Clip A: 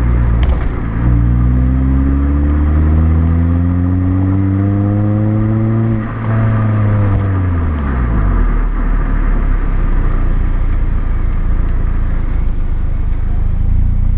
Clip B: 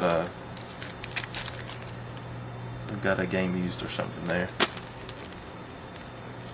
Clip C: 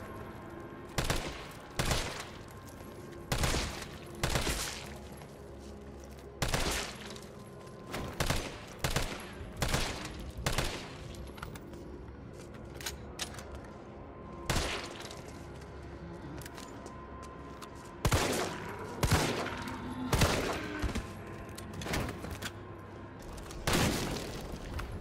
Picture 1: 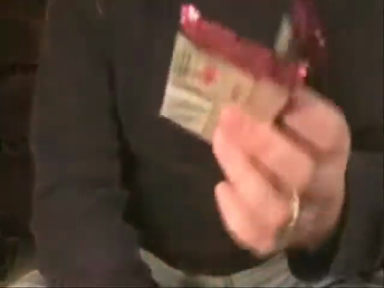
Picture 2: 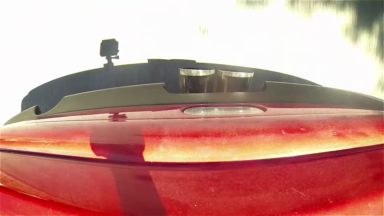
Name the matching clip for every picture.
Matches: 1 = B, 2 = A